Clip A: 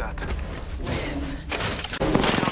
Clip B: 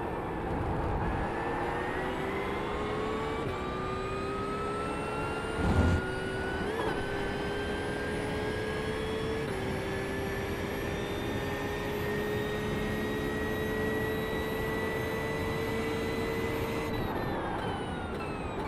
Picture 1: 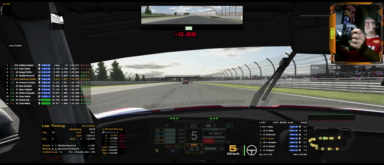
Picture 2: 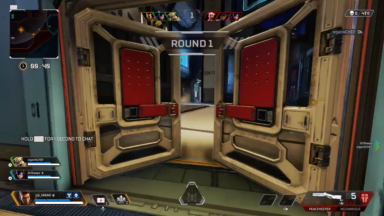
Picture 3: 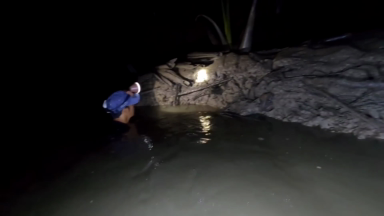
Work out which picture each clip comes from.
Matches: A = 2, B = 1